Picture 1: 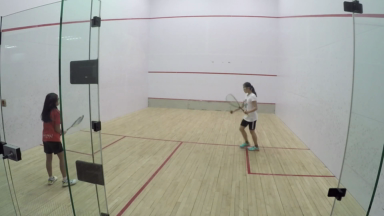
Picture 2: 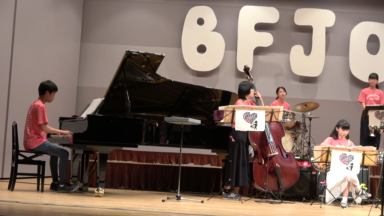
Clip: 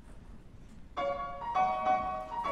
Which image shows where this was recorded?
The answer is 2